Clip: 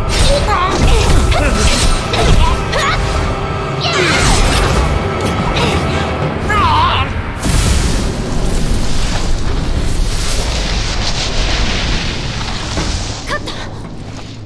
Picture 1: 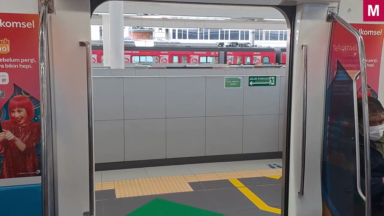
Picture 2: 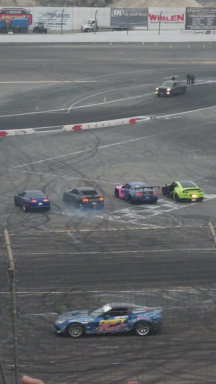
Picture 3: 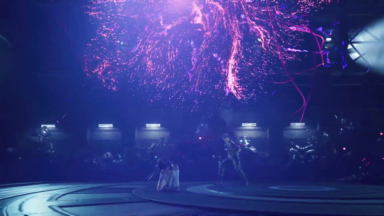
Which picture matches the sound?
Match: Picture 3